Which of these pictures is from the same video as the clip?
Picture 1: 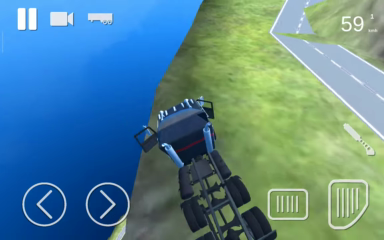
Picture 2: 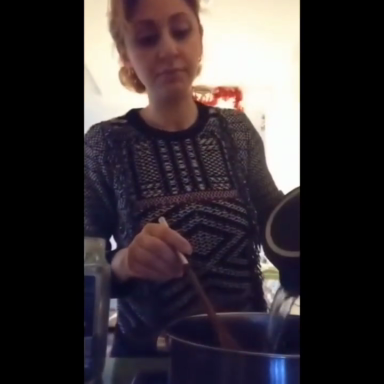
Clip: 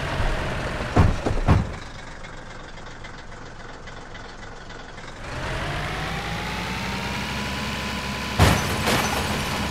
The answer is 1